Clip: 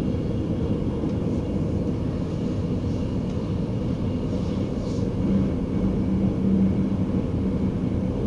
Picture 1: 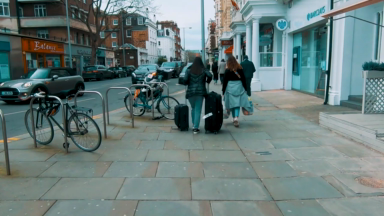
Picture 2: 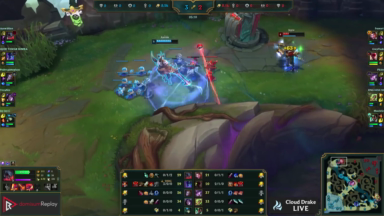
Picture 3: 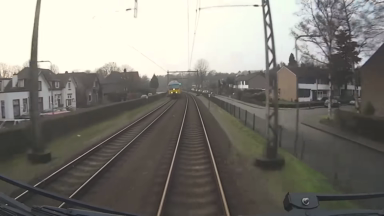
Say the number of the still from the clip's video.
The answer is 3